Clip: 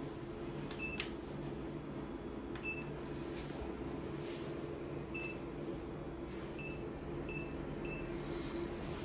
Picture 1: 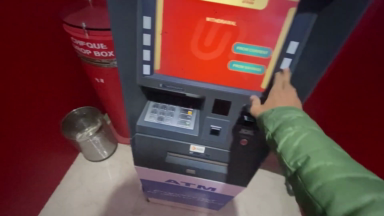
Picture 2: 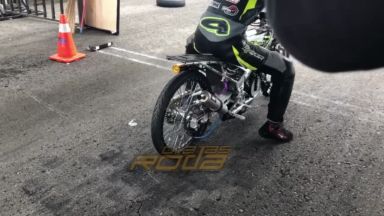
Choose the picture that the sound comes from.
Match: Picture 1